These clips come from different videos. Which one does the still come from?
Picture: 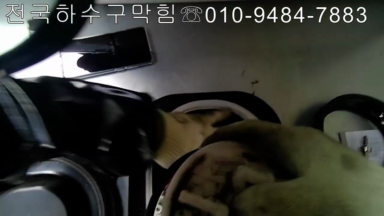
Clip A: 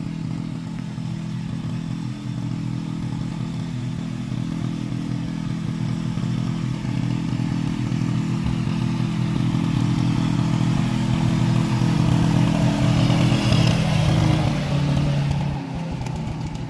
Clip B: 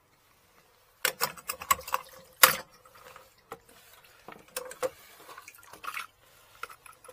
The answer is B